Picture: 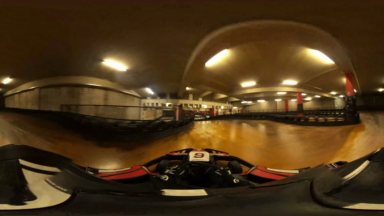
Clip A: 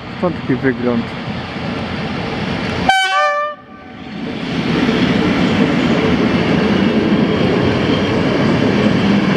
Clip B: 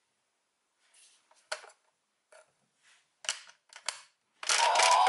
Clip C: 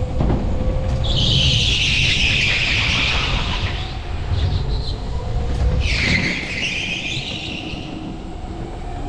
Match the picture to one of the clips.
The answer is C